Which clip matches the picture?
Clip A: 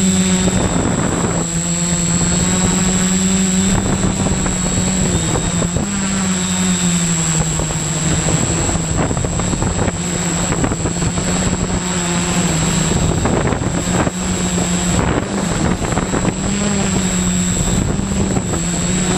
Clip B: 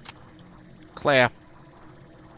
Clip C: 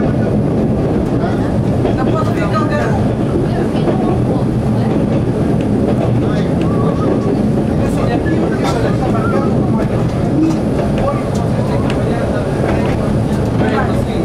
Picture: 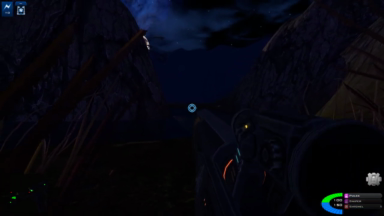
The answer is B